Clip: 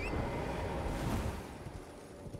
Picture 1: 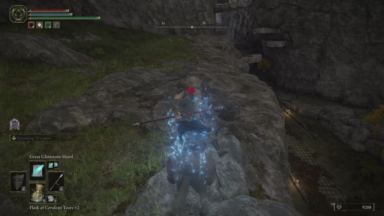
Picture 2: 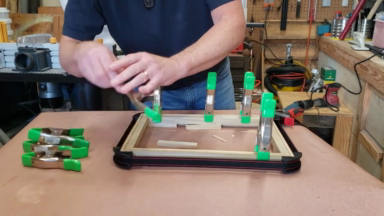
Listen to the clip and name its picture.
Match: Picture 1